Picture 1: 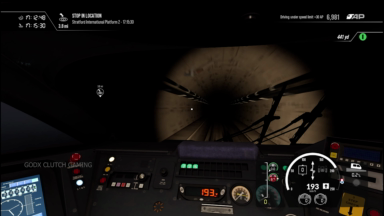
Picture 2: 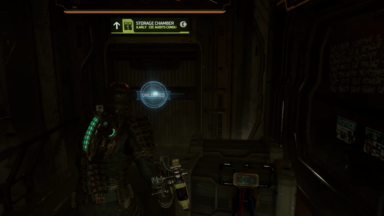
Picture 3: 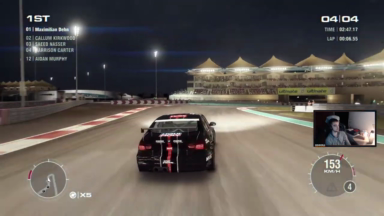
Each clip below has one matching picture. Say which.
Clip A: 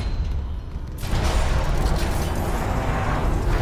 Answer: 2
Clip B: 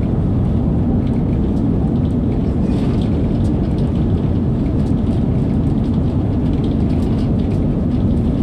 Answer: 1